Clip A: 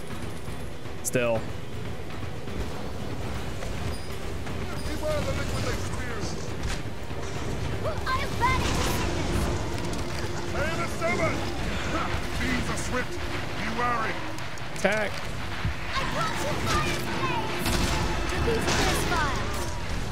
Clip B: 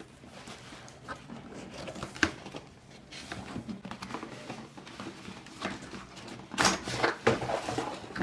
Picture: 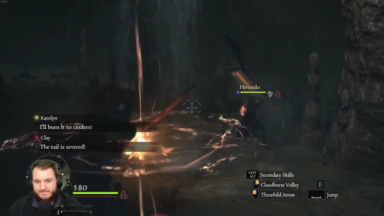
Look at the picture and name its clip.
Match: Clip A